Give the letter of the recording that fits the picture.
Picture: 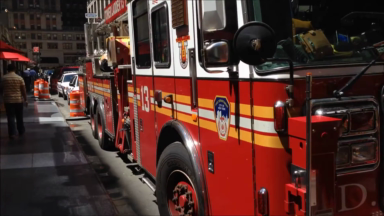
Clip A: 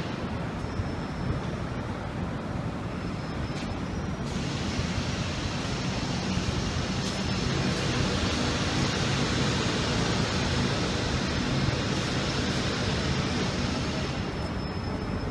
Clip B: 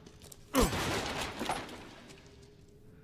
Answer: A